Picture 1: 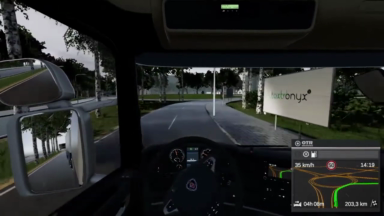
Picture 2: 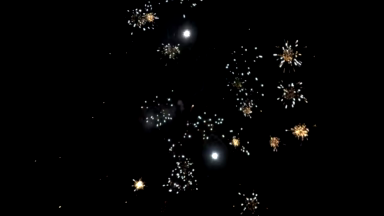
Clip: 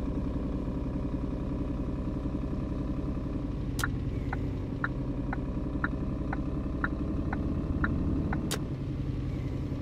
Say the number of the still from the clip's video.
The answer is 1